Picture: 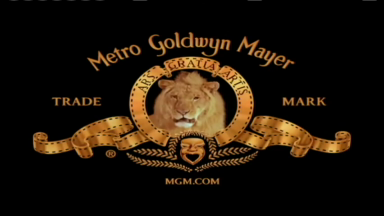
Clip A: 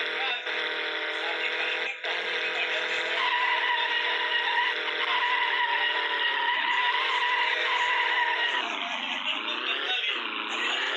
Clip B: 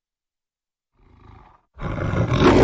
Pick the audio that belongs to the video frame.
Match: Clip B